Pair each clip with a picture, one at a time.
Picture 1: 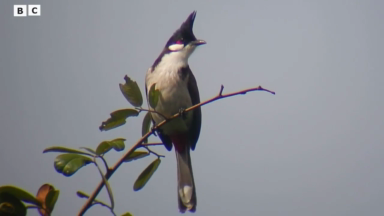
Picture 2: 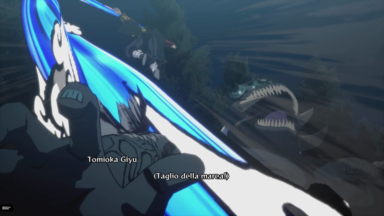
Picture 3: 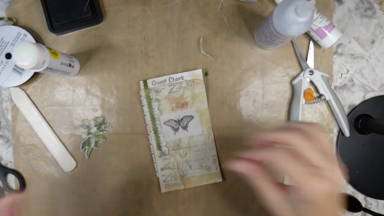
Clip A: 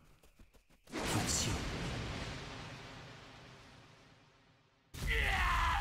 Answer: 2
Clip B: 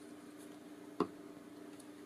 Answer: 3